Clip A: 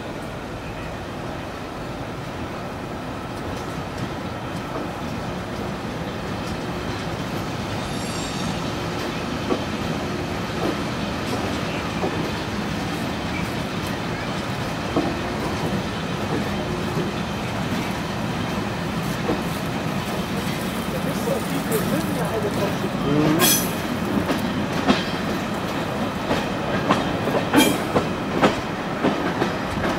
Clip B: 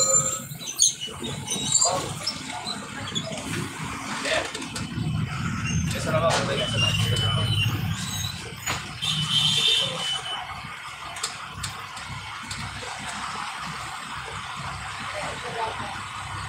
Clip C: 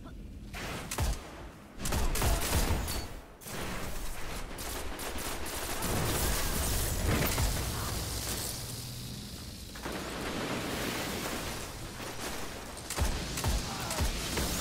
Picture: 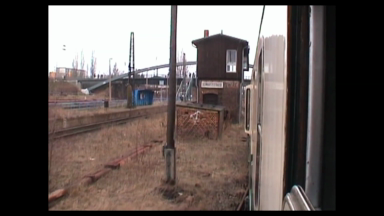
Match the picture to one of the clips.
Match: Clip A